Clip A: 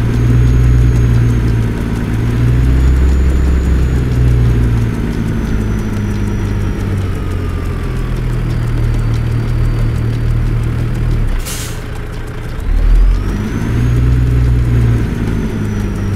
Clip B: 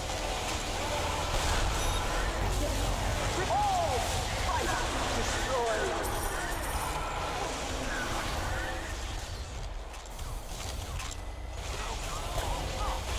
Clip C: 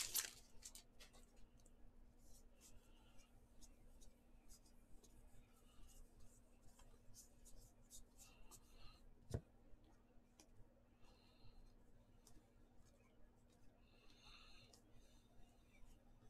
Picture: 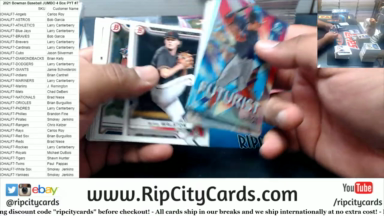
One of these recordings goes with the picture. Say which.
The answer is C